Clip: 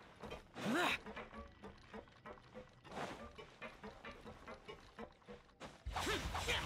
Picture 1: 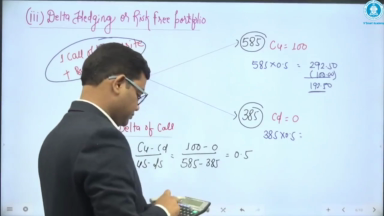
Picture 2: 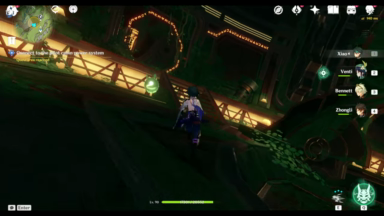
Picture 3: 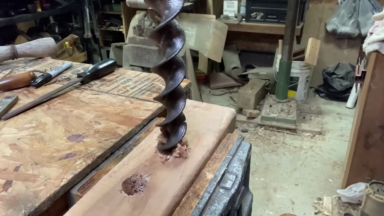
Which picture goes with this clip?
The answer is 2